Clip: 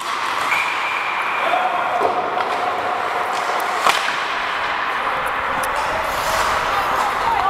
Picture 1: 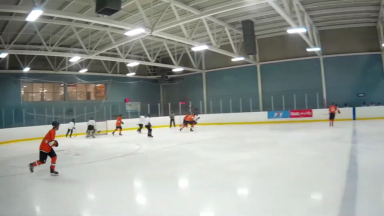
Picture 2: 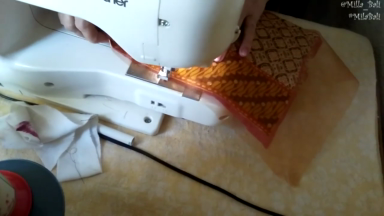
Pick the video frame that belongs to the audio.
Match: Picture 1